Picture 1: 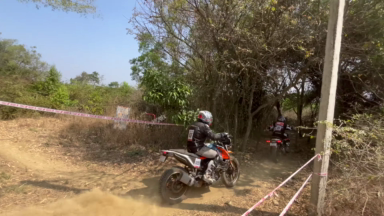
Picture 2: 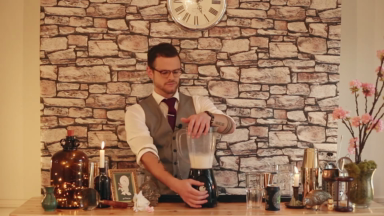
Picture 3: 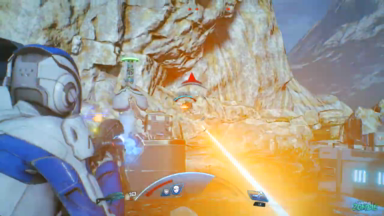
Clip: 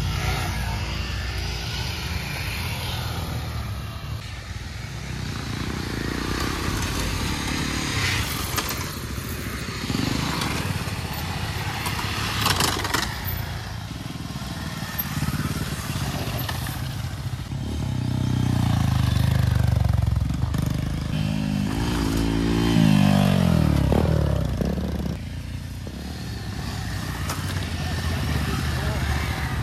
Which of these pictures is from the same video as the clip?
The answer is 1